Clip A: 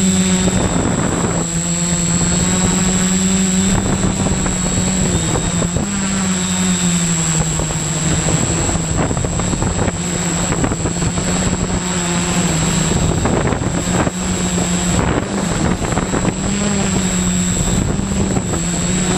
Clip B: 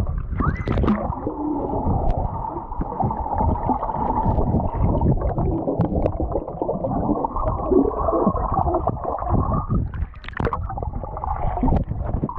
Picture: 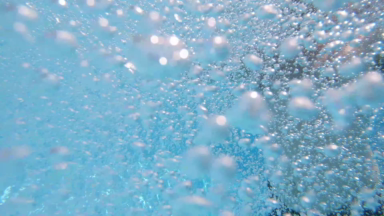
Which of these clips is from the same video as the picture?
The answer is B